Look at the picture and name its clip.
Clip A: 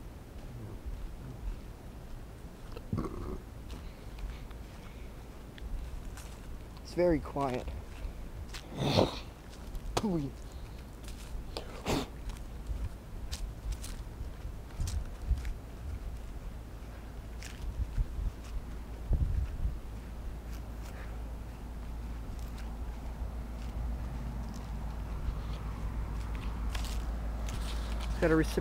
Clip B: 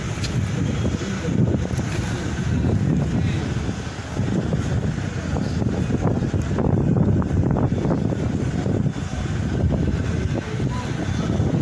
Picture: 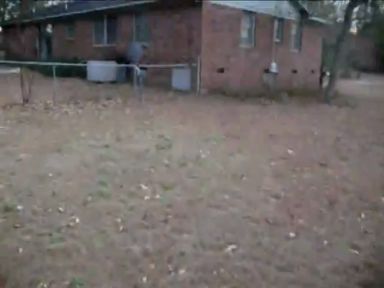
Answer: A